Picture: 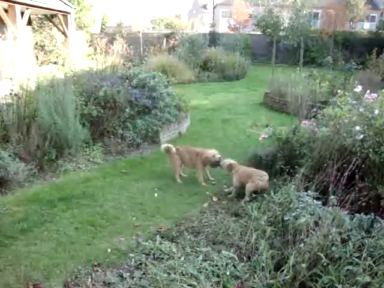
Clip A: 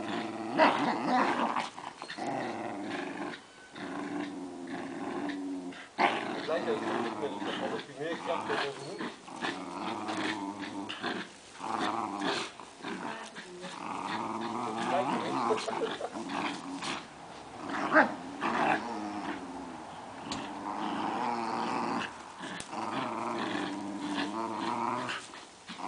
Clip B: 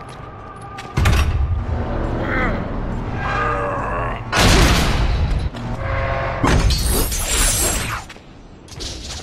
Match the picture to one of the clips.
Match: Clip A